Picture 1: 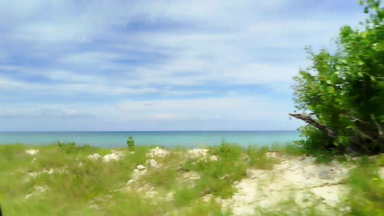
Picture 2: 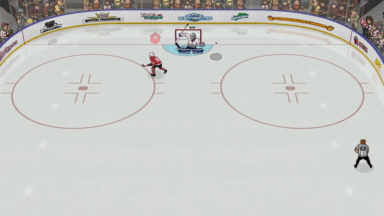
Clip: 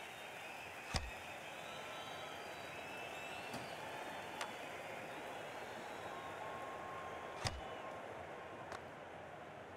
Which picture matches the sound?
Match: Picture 2